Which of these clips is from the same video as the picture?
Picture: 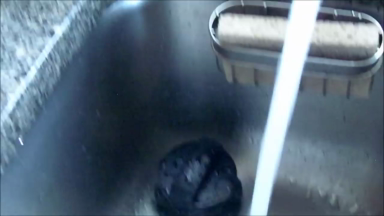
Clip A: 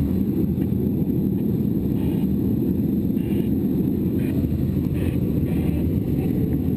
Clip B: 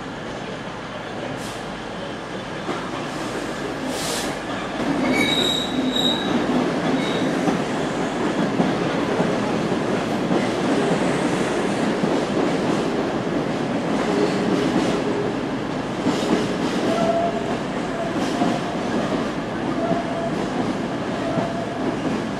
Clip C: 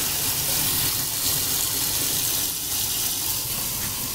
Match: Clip C